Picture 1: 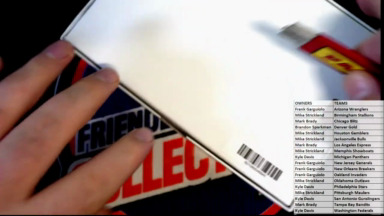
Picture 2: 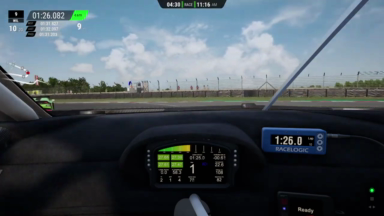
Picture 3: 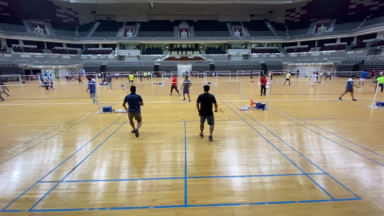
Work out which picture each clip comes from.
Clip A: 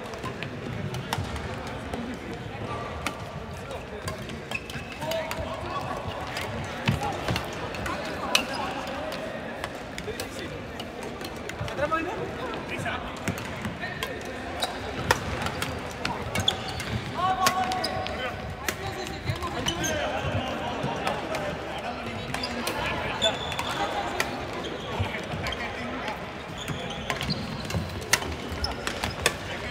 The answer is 3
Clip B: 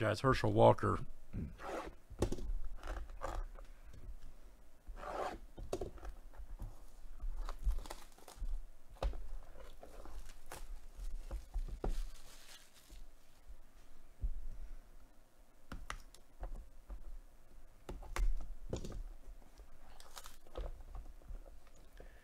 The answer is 1